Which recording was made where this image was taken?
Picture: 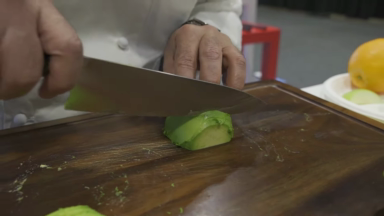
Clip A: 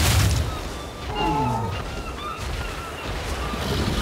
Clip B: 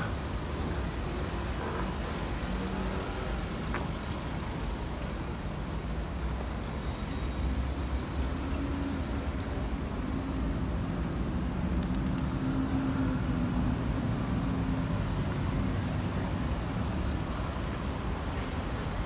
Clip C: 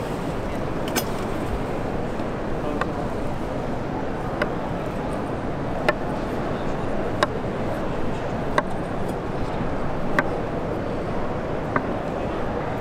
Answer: C